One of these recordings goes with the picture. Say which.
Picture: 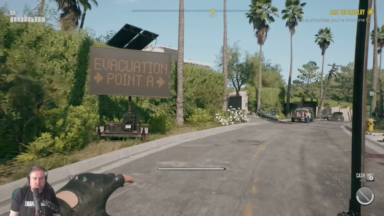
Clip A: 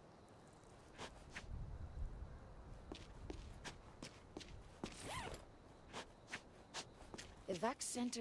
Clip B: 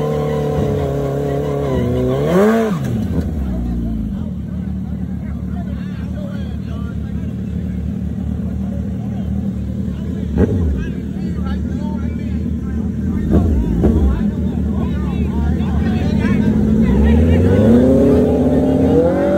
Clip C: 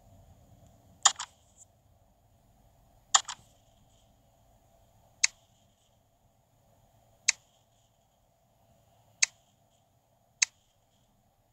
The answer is A